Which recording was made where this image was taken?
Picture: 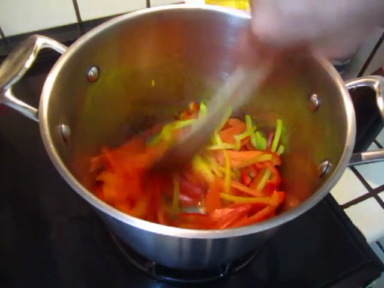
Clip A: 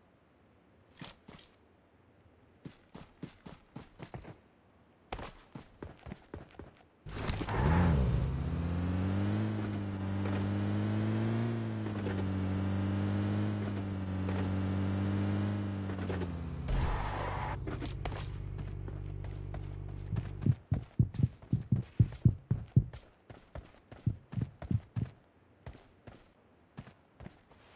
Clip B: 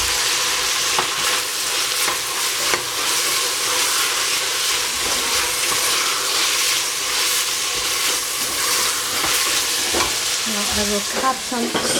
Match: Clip B